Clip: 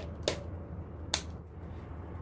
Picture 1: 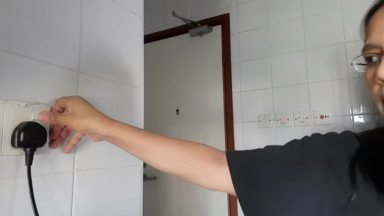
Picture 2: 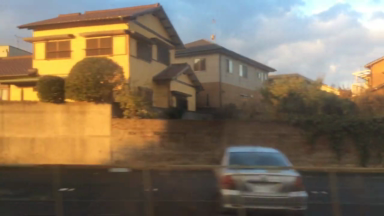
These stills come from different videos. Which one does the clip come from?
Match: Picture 1